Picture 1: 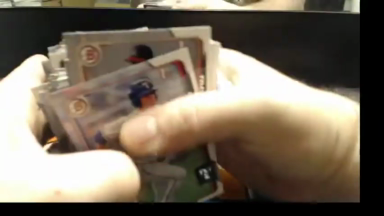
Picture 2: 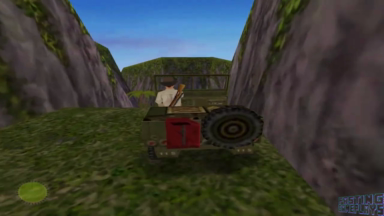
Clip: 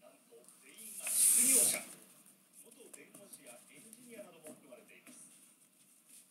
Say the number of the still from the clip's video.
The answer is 1